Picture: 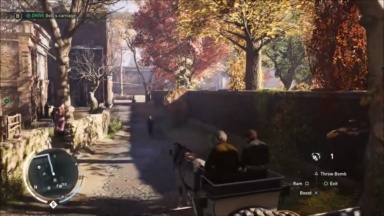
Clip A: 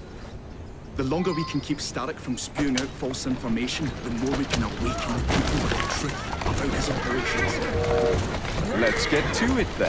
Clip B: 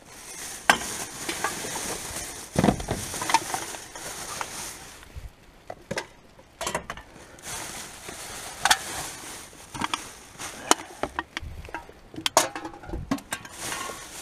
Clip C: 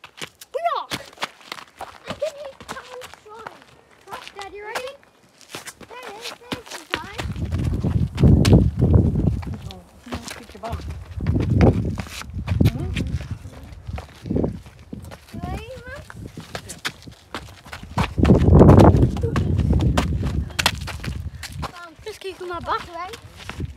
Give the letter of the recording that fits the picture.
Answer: A